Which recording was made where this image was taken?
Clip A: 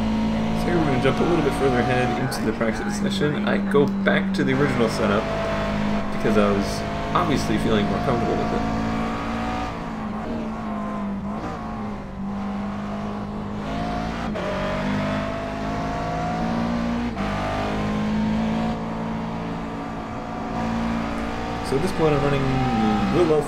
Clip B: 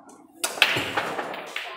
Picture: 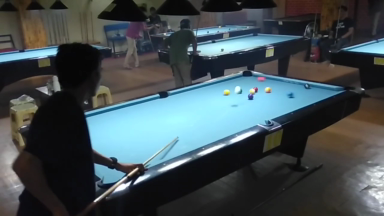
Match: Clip B